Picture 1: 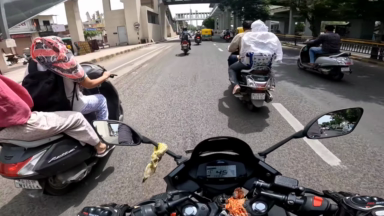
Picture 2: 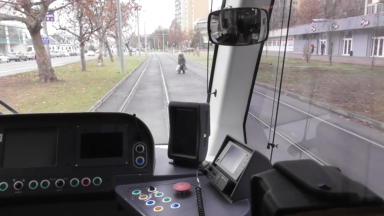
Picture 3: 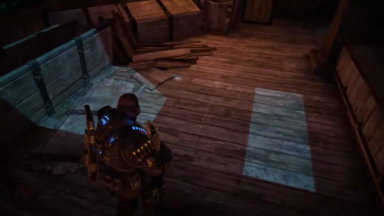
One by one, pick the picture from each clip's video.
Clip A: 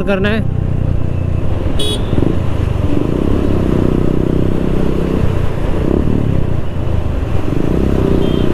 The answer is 1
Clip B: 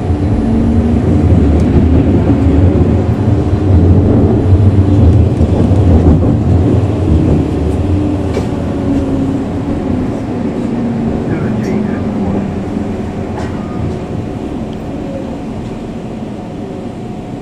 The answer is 2